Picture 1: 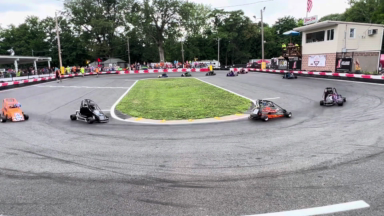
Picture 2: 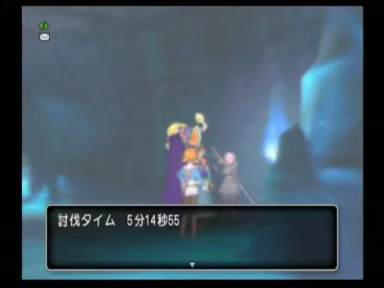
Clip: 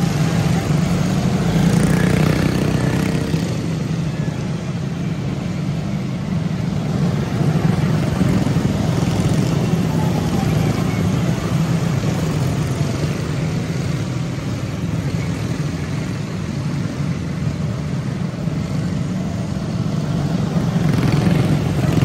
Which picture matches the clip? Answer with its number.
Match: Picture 1